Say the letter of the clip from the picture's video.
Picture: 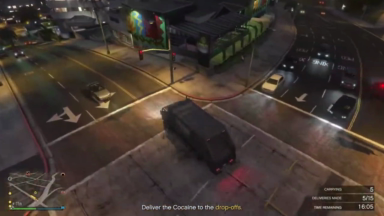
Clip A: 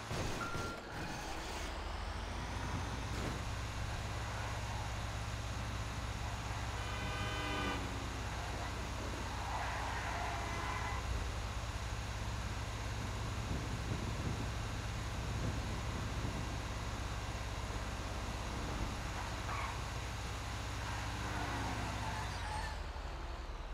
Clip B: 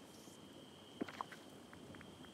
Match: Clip A